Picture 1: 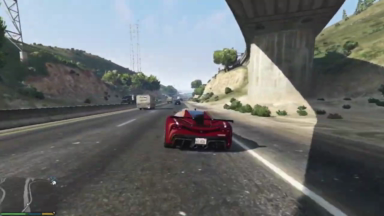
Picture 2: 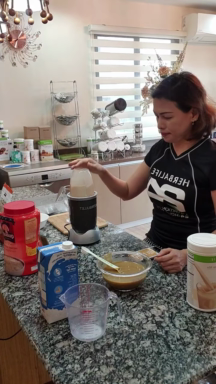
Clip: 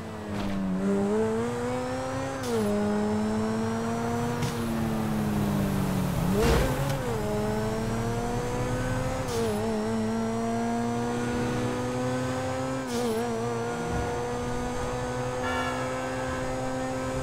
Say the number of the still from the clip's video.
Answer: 1